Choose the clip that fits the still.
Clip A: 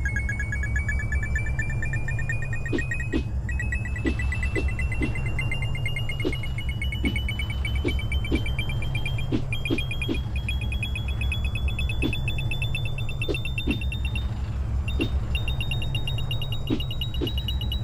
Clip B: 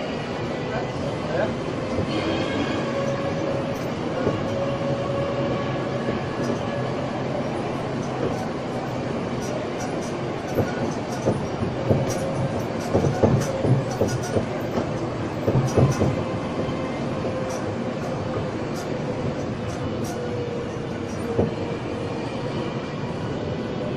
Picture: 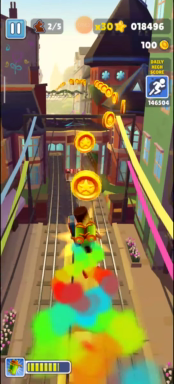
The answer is A